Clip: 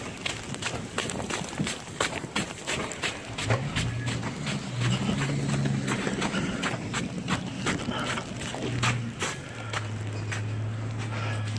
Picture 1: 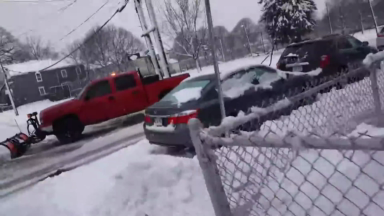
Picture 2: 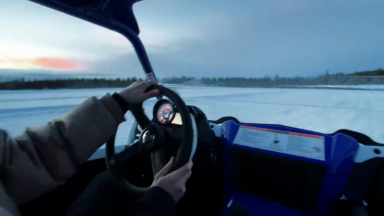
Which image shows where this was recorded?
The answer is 1